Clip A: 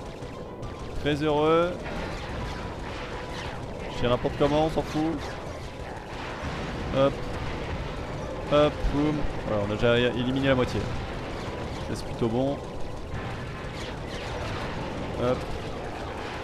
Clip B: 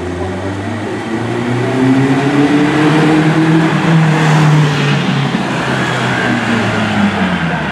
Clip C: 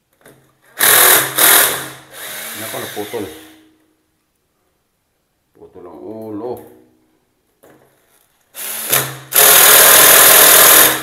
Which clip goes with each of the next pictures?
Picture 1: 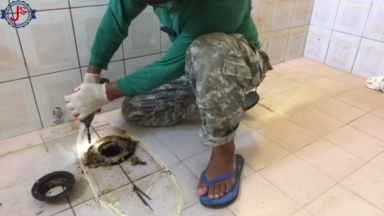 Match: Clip C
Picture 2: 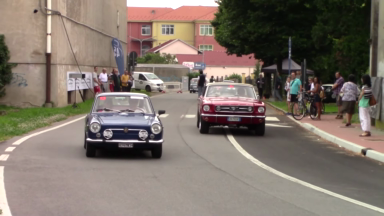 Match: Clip B